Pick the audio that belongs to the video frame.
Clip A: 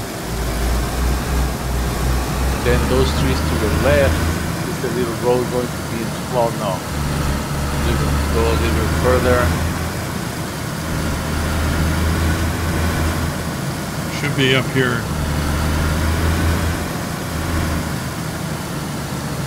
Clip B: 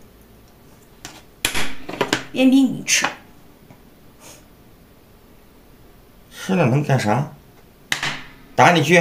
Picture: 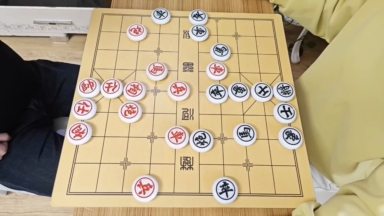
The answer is B